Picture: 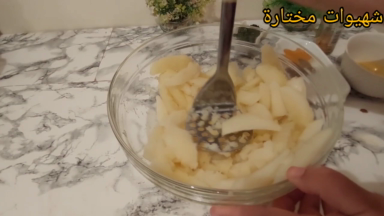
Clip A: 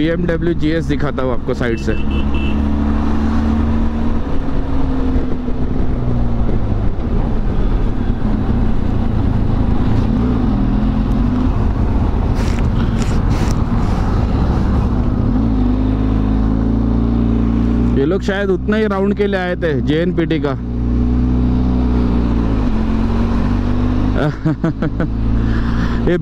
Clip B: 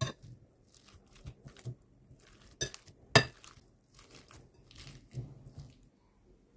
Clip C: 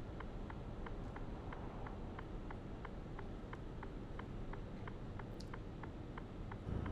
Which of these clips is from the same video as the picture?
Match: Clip B